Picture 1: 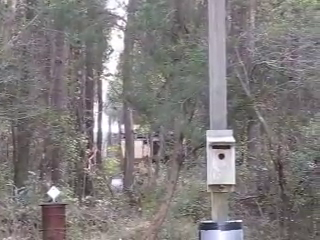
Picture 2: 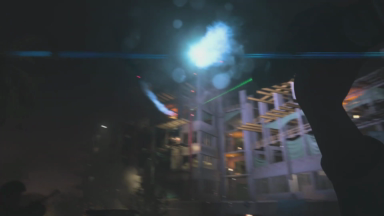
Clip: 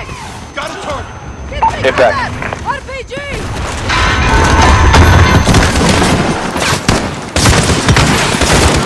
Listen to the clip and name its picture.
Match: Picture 2